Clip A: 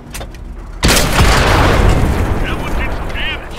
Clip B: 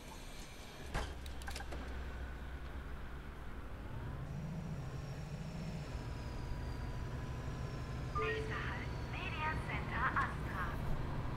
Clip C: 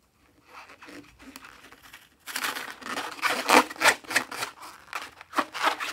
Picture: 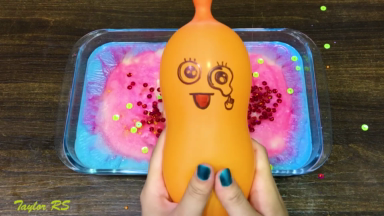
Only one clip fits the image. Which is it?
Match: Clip C